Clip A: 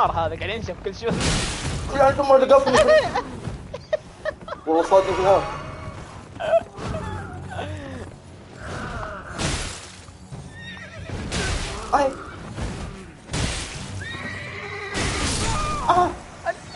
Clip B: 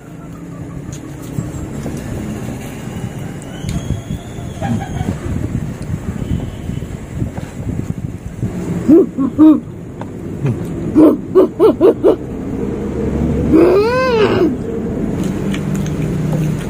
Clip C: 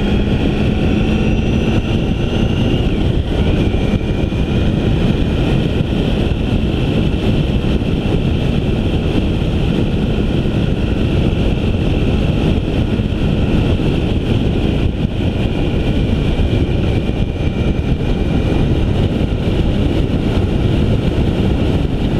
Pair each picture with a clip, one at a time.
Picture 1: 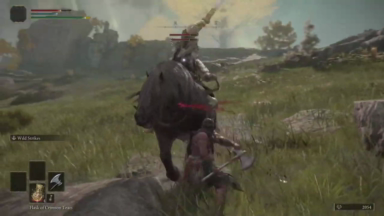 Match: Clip A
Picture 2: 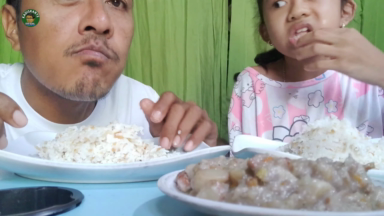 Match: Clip B